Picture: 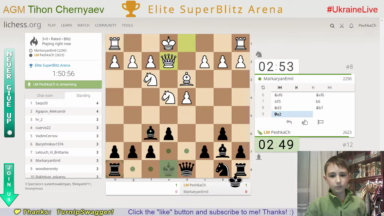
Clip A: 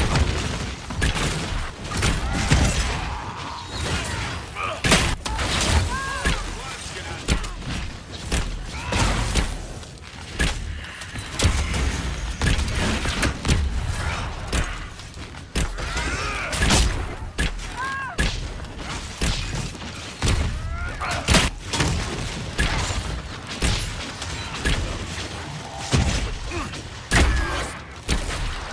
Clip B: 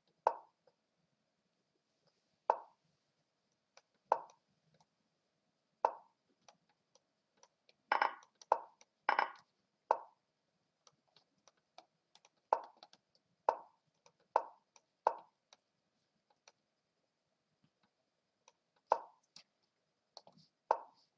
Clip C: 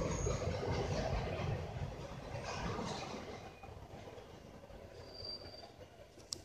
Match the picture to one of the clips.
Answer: B